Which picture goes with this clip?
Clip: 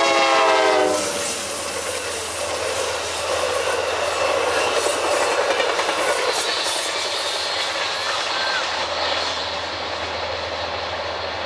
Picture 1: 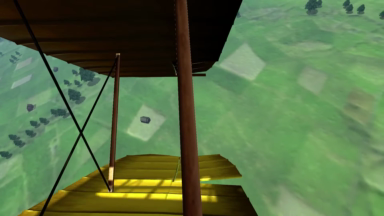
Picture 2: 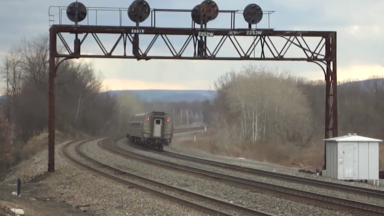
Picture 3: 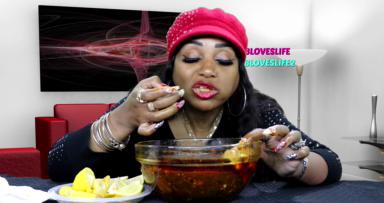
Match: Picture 2